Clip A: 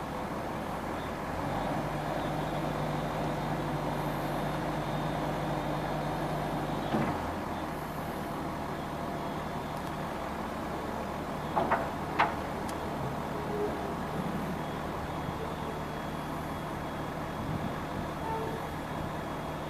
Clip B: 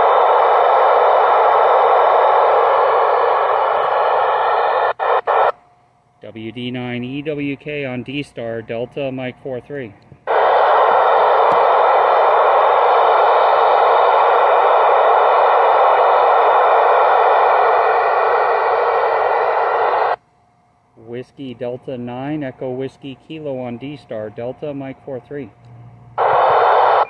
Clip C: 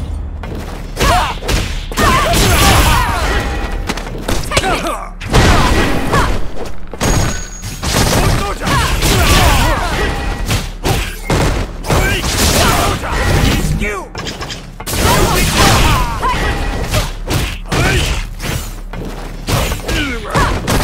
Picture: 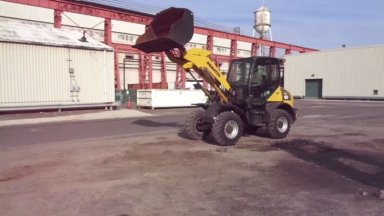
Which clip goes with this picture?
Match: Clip A